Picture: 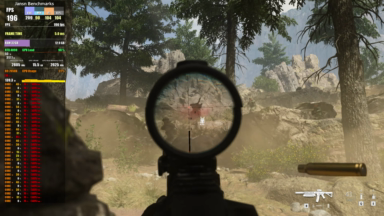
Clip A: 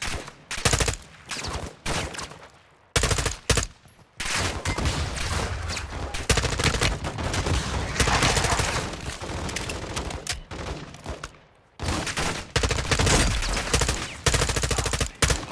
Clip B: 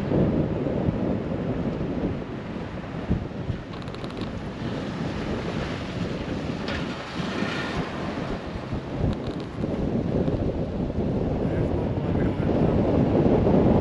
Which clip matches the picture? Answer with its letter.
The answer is A